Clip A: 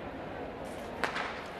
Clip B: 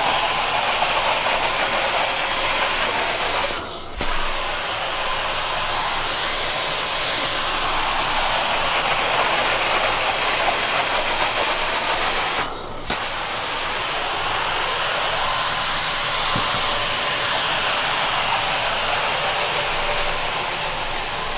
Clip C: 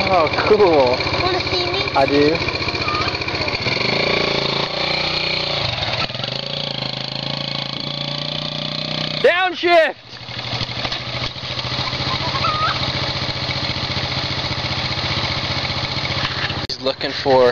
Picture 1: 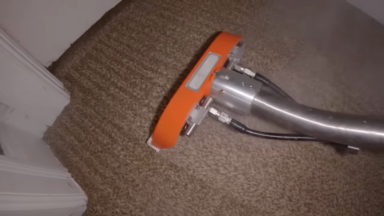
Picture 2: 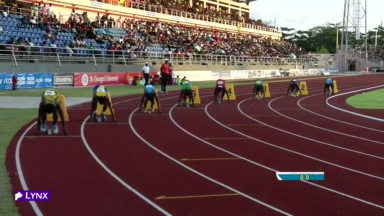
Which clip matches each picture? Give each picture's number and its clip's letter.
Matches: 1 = B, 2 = A